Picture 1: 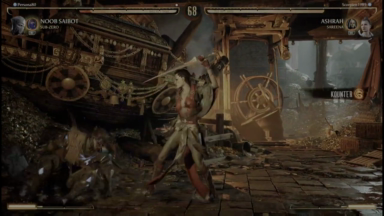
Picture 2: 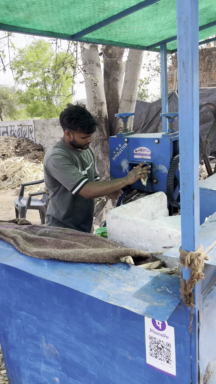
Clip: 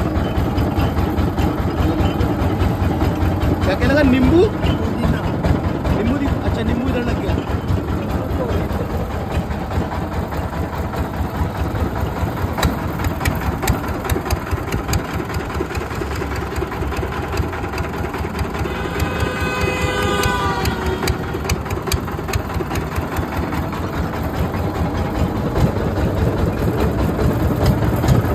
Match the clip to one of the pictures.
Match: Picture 2